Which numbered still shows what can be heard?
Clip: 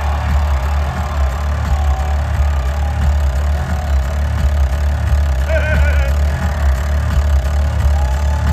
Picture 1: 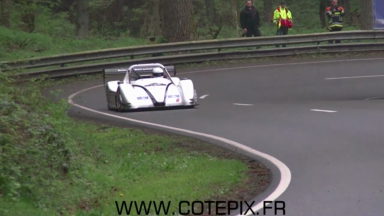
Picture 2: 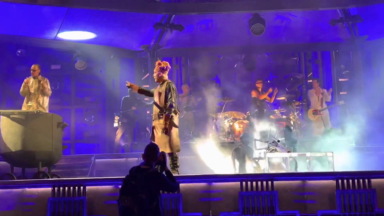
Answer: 2